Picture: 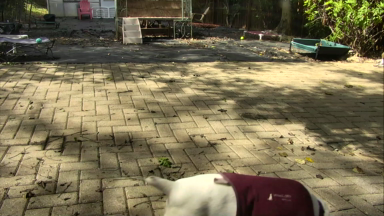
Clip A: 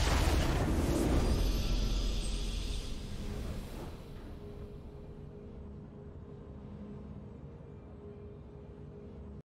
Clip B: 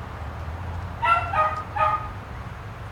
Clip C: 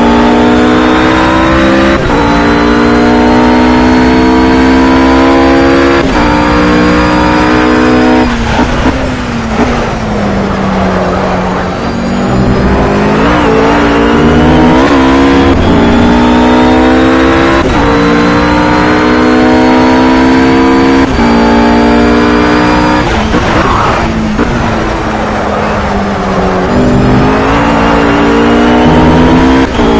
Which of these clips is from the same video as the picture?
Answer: B